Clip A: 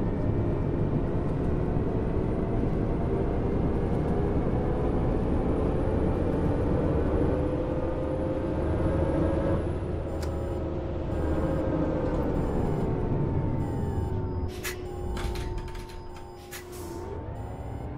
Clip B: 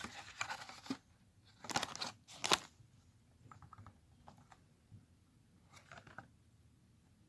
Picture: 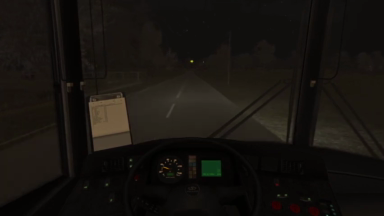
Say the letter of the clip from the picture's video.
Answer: A